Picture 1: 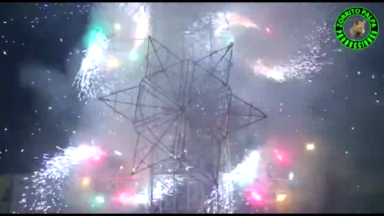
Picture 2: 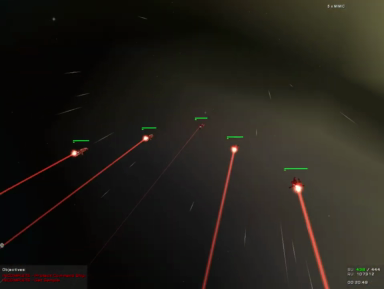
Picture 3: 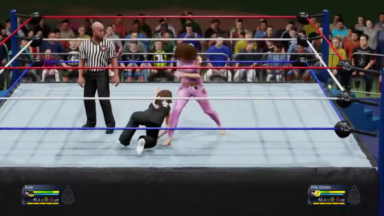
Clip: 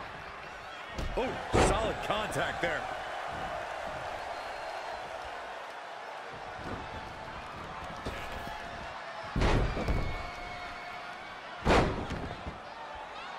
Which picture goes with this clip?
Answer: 3